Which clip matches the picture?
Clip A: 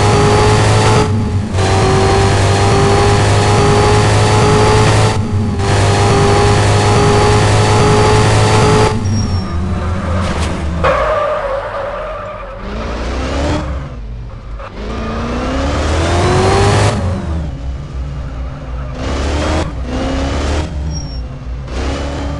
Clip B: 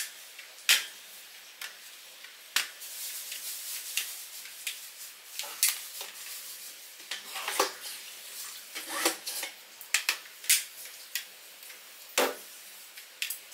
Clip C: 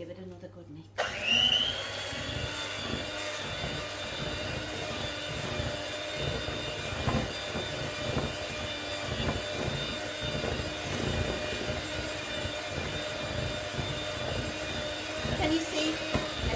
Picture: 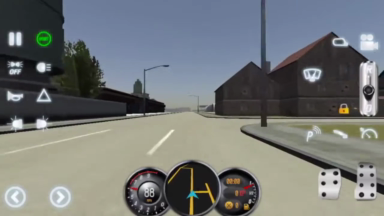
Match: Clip A